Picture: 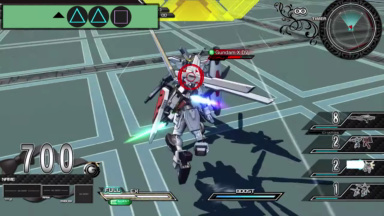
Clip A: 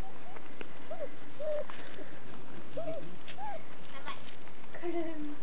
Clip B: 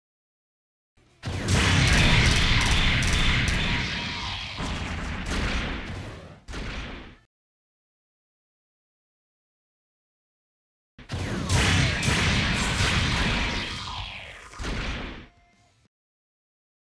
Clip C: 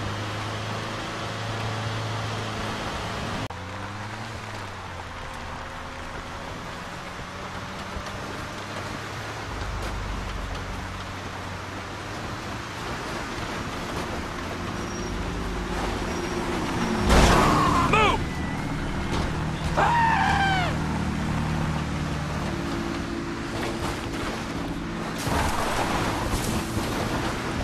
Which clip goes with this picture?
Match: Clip B